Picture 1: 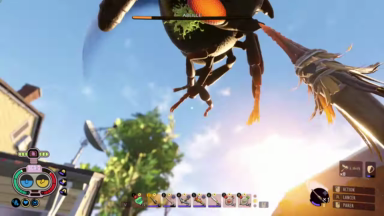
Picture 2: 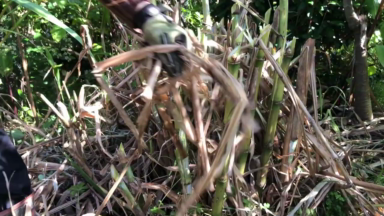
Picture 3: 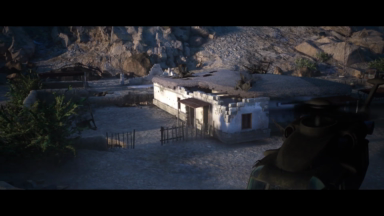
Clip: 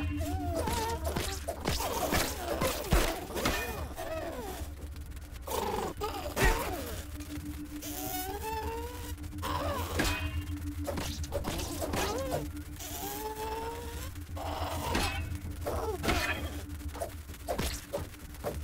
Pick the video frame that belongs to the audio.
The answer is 1